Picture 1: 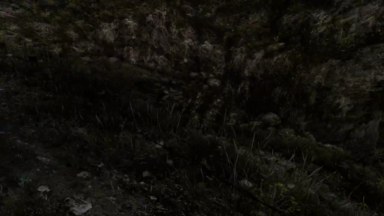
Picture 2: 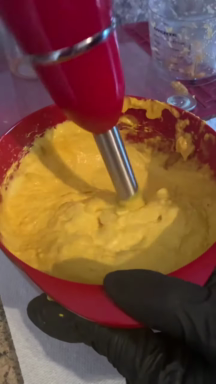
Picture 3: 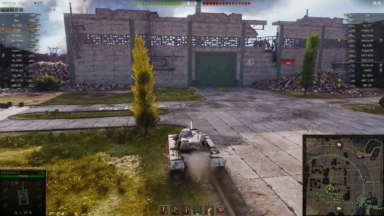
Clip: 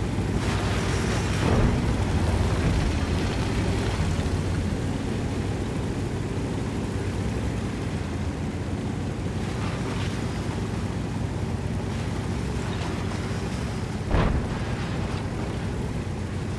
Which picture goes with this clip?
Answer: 3